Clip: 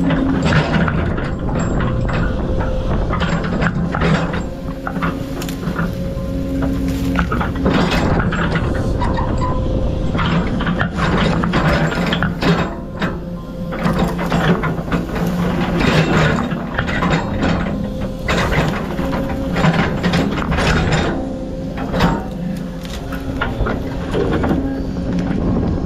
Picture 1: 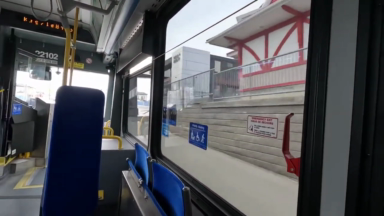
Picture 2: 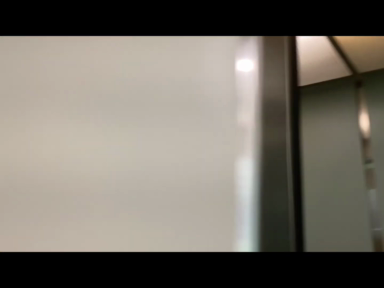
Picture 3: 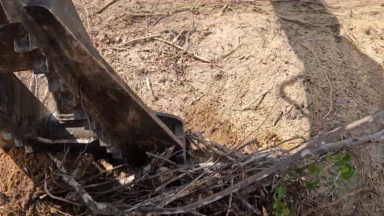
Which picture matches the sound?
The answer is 3